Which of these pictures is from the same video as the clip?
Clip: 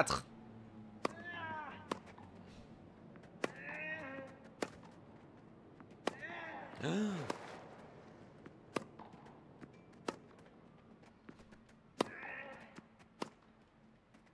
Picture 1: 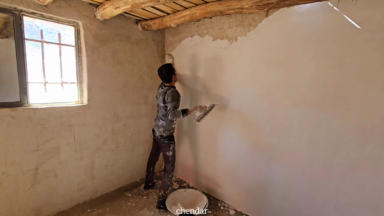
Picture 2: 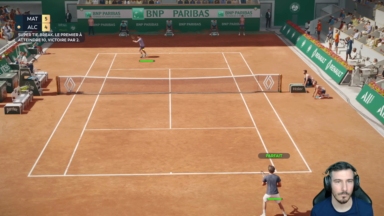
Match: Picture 2